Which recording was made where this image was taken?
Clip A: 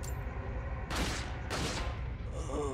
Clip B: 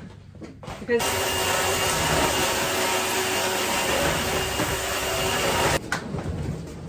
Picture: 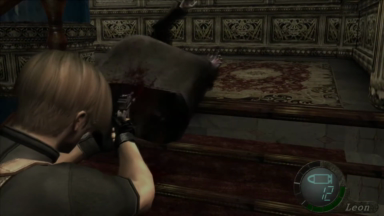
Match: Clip A